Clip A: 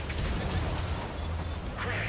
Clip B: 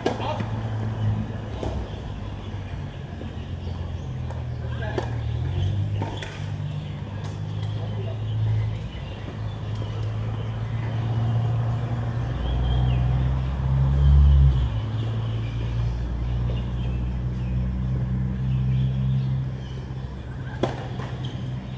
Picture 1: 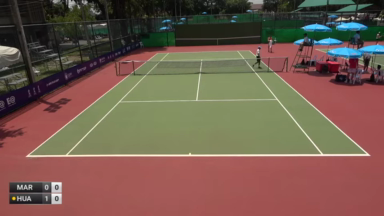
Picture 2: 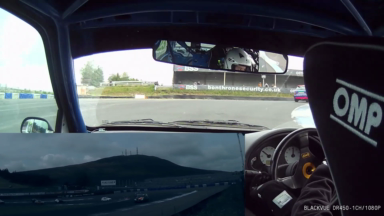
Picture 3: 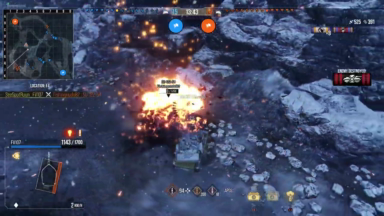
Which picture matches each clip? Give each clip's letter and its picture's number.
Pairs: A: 3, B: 1